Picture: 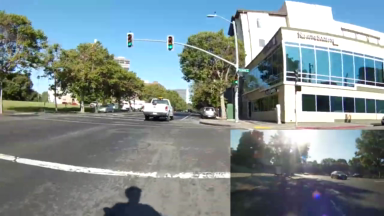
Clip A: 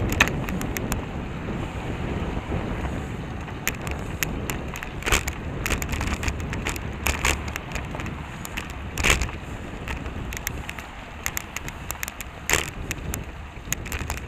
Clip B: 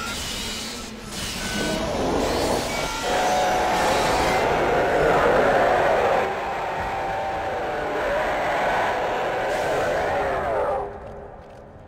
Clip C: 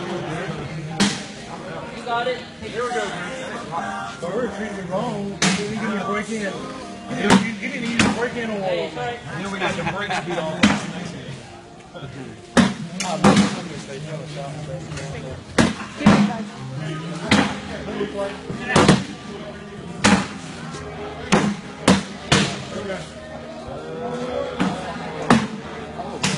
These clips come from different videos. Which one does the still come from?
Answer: A